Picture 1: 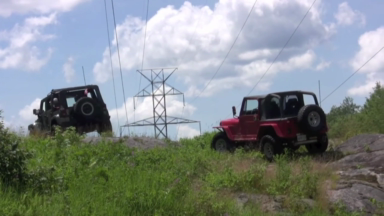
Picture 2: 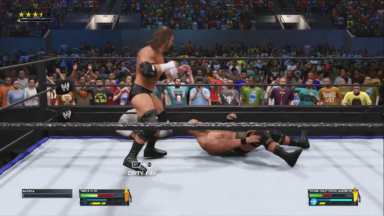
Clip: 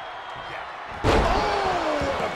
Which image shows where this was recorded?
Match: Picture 2